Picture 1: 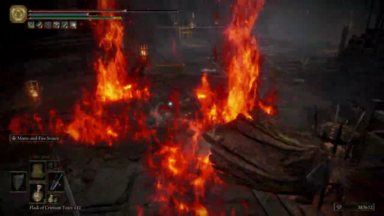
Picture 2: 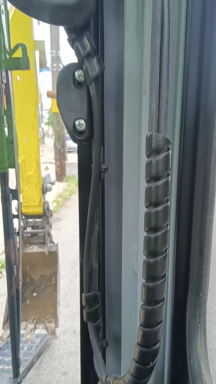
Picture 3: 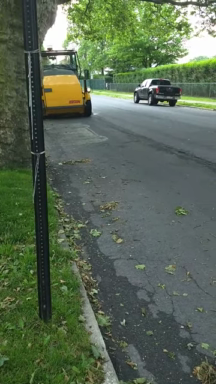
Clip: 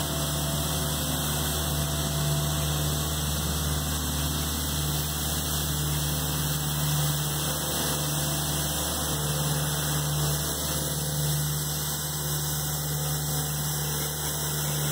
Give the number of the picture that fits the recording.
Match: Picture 3